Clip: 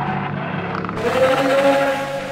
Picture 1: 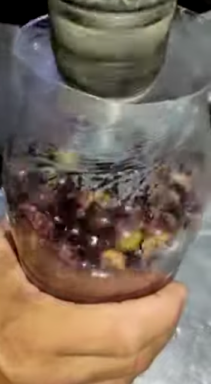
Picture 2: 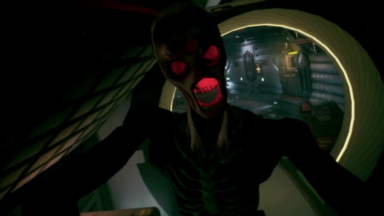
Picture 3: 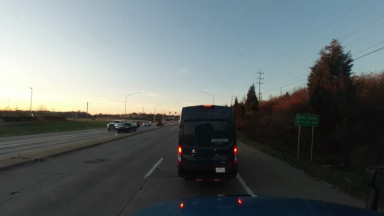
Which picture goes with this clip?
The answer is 2